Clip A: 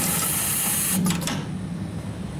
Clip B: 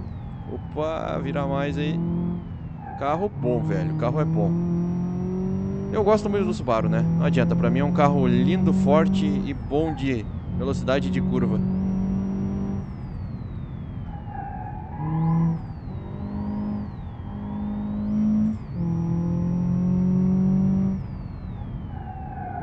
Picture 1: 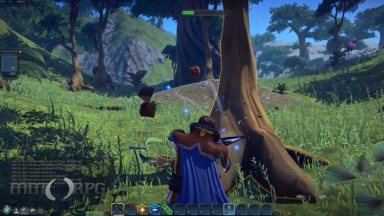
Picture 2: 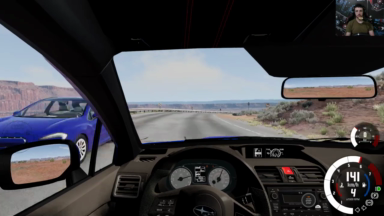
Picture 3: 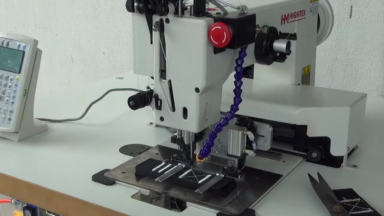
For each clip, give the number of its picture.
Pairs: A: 3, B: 2